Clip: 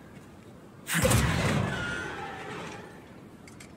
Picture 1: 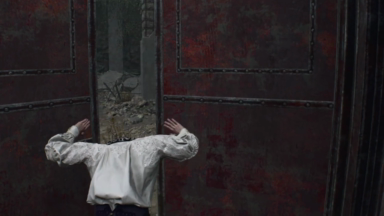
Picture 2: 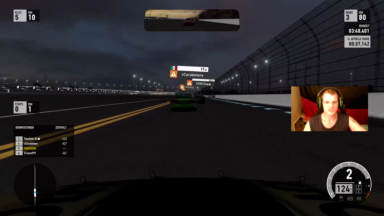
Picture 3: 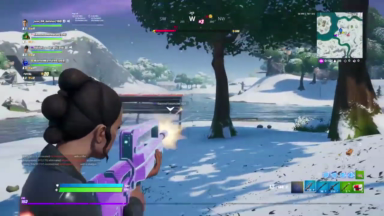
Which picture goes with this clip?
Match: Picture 1